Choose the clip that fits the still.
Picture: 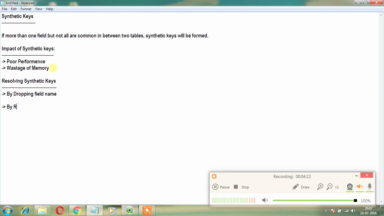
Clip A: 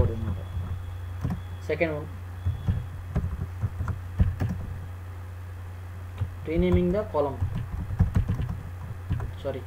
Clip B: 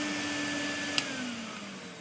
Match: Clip A